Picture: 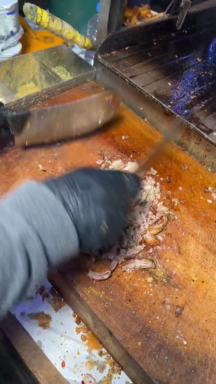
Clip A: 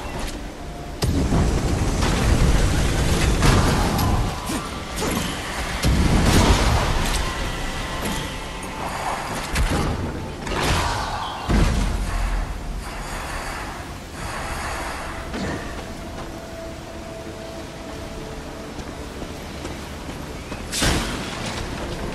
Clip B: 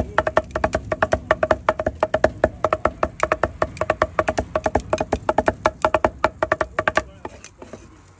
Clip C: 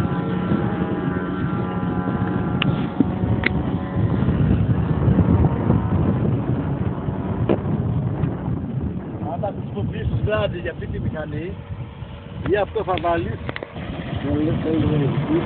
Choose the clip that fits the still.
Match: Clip B